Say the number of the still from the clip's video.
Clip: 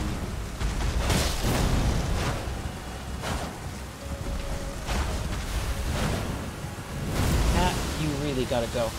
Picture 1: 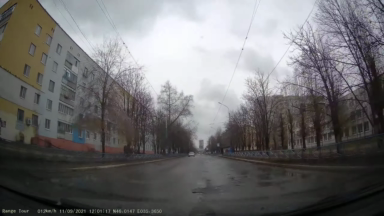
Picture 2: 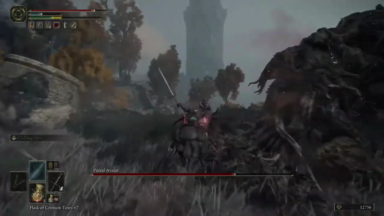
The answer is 2